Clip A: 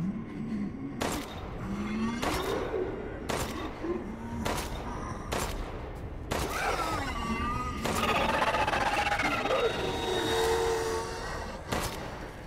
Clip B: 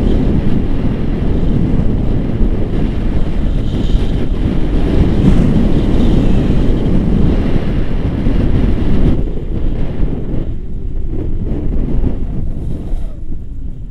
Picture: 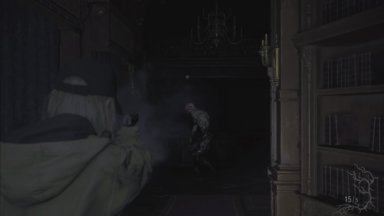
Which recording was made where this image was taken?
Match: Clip A